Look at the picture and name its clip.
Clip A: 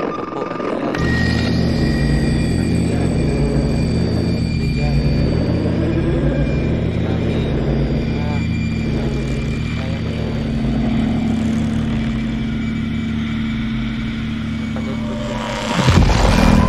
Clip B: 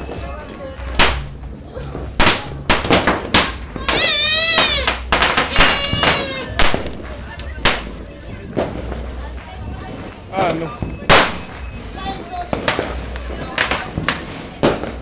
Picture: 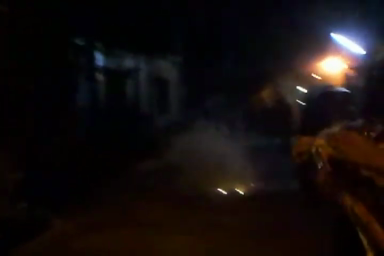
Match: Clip B